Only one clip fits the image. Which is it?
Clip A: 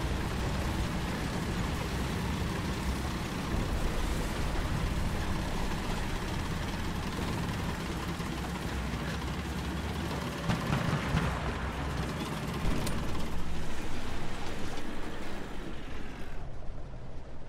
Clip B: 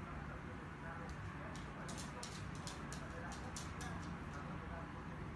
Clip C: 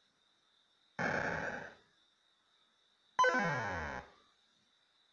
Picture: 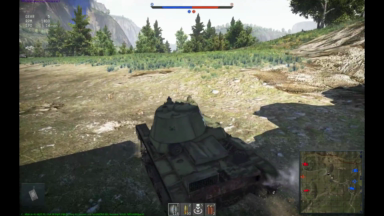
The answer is A